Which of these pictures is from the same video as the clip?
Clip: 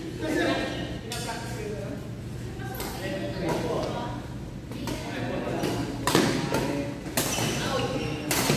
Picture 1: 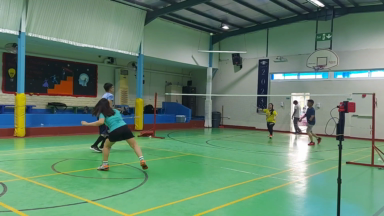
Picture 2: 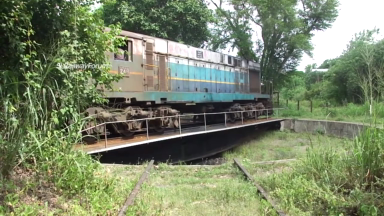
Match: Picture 1